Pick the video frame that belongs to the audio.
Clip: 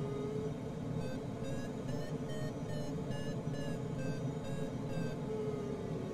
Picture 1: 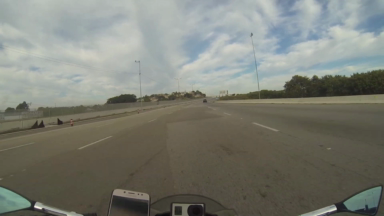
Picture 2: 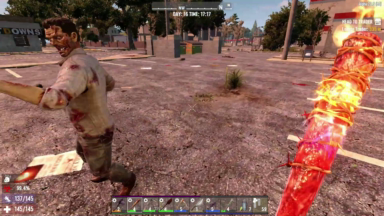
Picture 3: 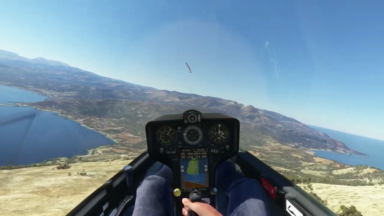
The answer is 3